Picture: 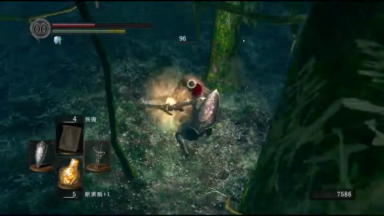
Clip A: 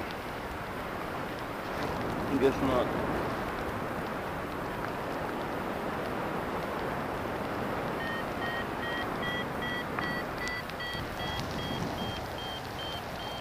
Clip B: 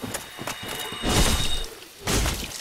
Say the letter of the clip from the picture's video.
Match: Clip B